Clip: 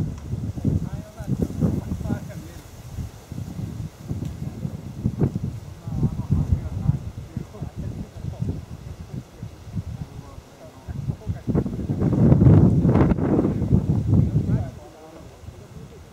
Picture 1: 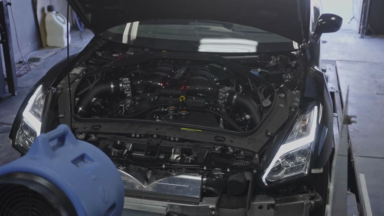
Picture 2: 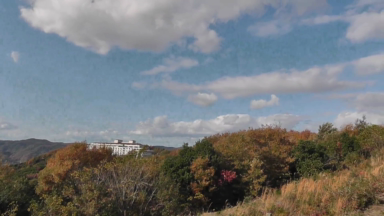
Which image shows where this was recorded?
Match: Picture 2